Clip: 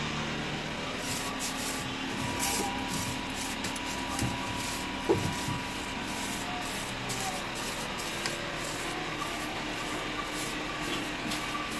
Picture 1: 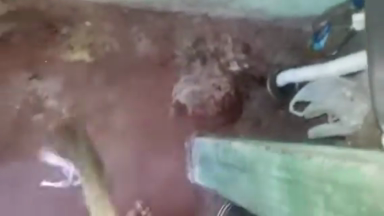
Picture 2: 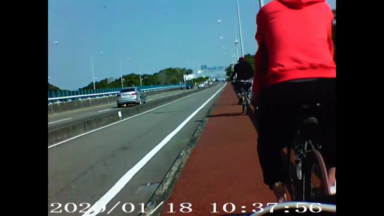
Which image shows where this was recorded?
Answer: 1